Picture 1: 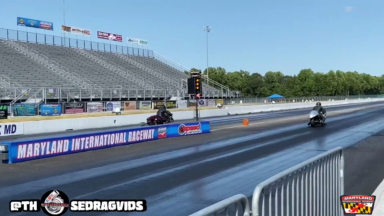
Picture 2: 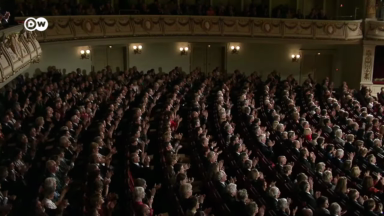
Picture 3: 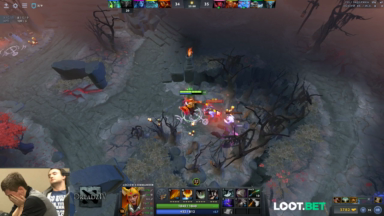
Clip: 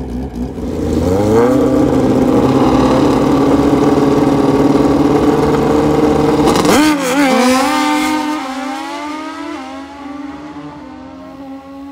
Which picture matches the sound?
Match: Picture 1